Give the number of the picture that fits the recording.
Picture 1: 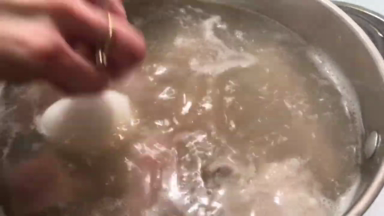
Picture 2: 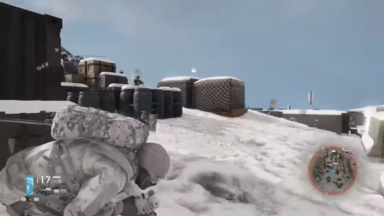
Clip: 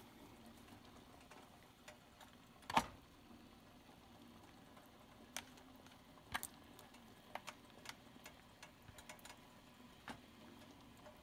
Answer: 1